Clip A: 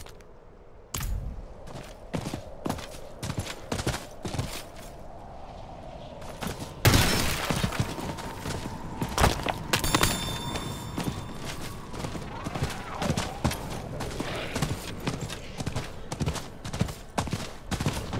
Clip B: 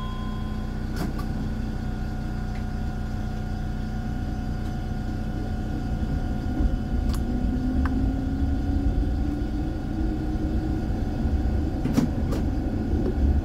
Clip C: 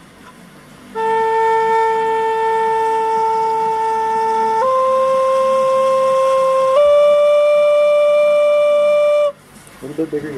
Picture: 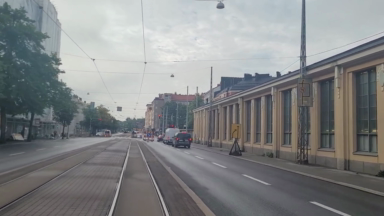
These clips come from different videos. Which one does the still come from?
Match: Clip B